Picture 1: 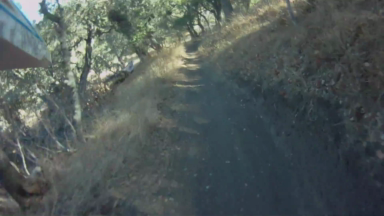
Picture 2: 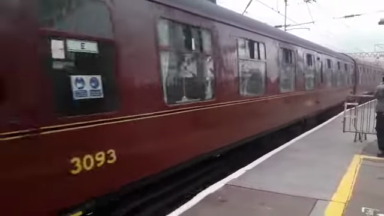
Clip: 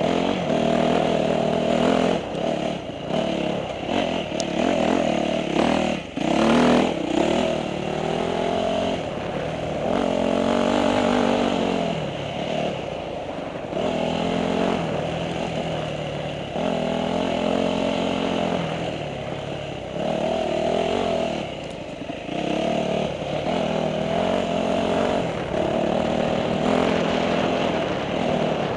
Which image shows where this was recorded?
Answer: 1